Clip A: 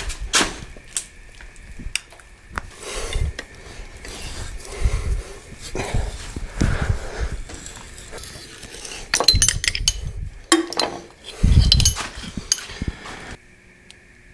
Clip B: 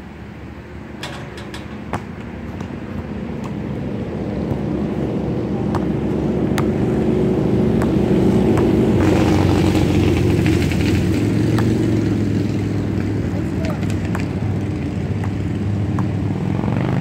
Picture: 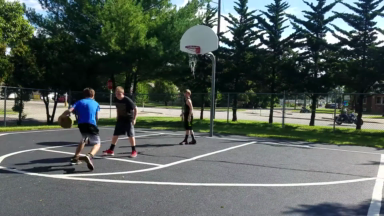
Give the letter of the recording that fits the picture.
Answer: B